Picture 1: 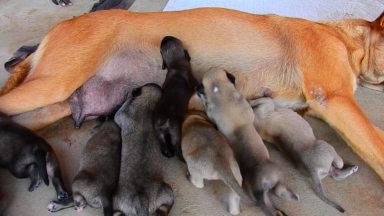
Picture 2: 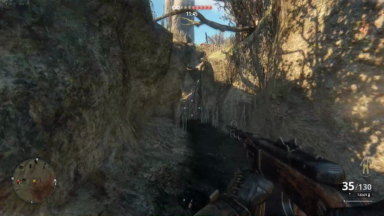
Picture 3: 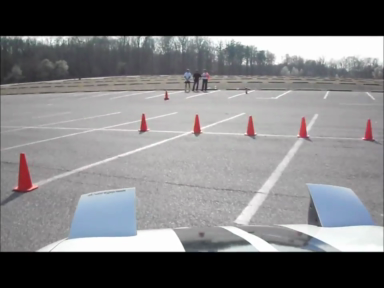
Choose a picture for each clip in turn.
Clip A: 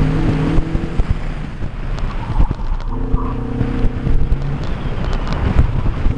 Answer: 3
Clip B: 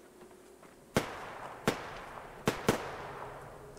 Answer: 2